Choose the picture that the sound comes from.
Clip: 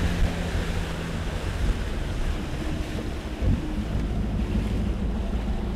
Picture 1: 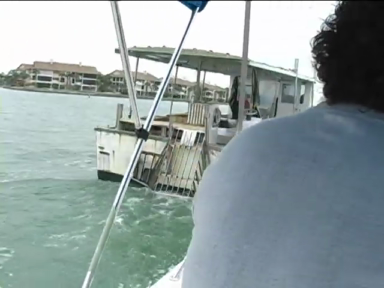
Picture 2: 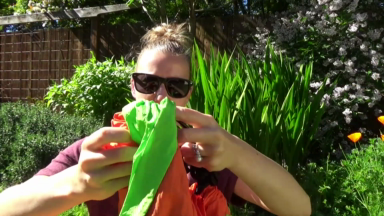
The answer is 1